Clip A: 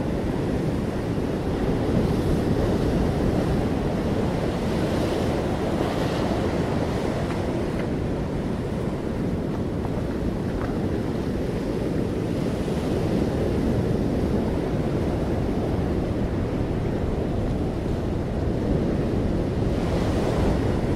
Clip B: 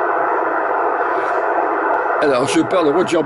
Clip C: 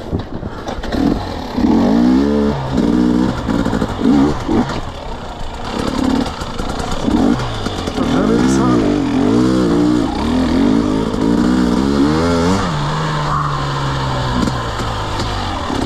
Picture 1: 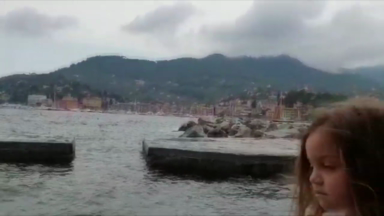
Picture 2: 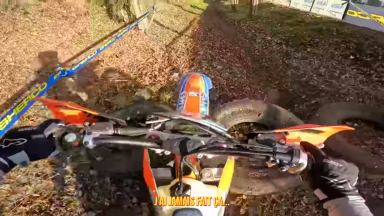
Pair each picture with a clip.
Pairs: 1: A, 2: C